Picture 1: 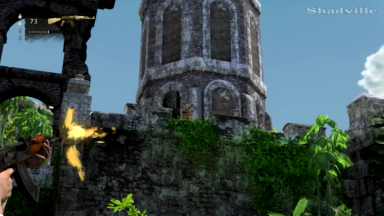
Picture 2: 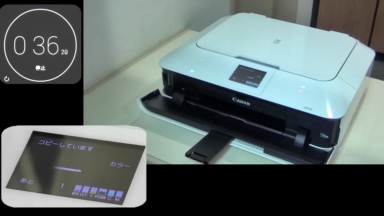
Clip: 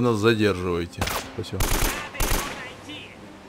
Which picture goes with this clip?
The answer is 1